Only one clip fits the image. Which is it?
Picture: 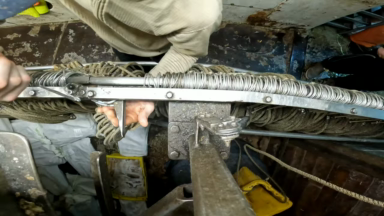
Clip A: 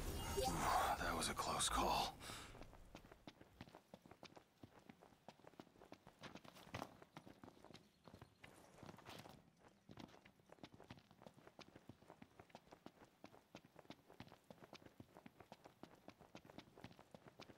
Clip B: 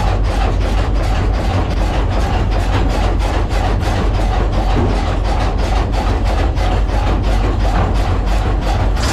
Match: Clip B